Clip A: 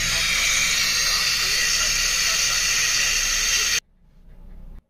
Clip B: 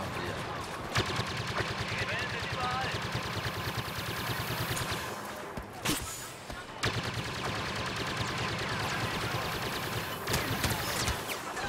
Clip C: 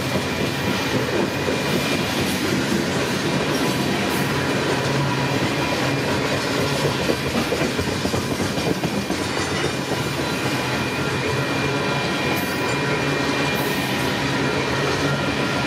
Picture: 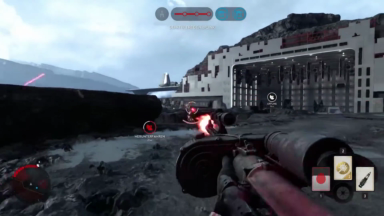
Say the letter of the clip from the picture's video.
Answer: B